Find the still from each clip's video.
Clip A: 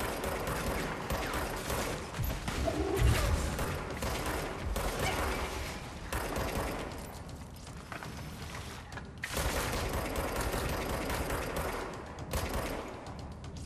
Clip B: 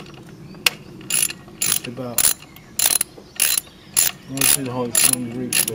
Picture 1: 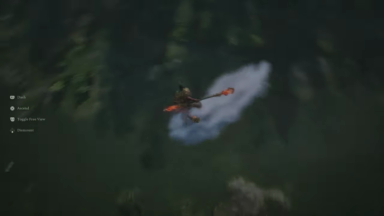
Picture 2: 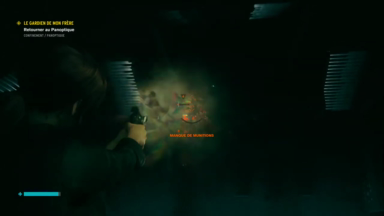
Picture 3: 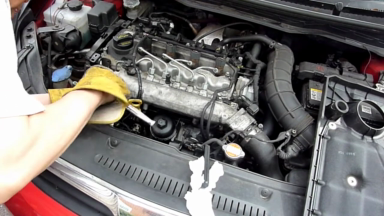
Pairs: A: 2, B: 3